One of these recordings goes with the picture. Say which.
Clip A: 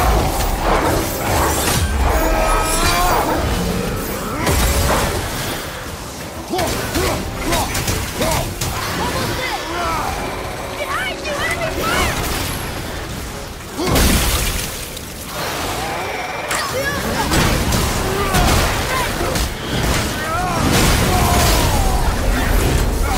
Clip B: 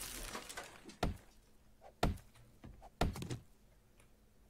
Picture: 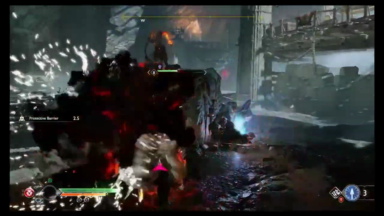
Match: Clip A